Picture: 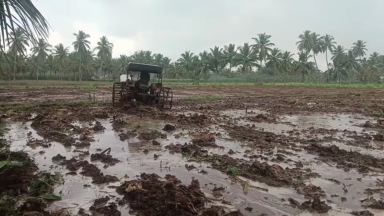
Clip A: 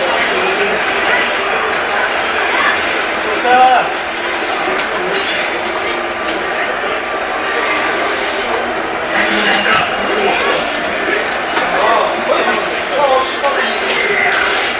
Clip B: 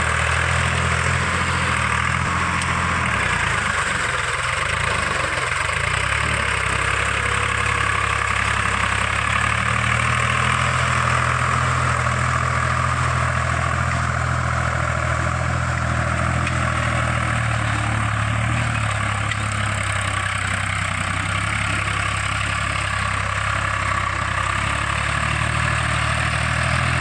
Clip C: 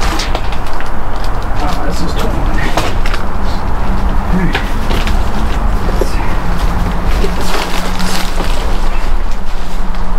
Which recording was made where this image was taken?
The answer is B